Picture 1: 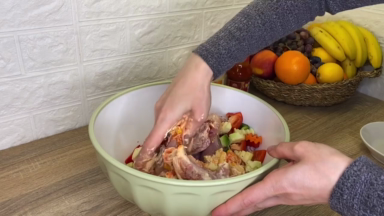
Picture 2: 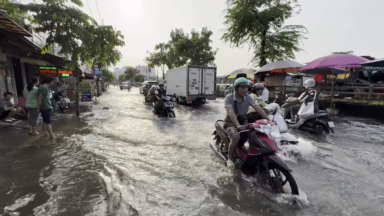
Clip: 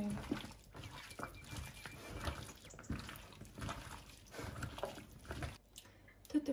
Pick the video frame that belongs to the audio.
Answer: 1